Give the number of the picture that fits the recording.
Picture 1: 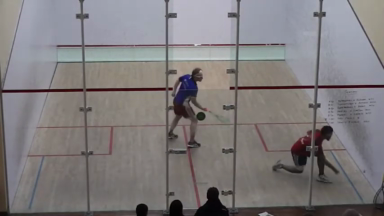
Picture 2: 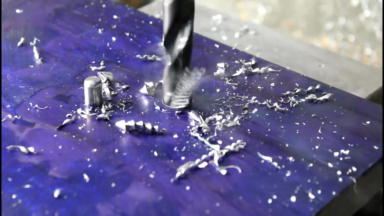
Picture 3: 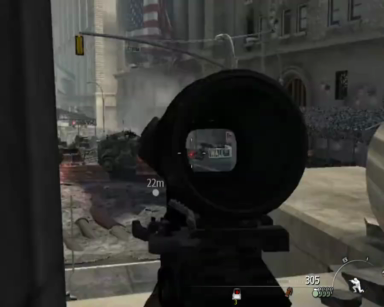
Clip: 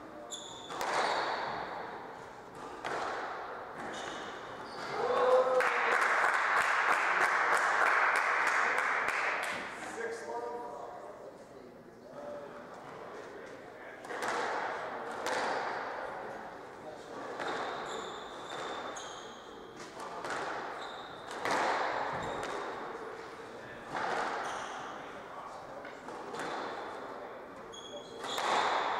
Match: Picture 1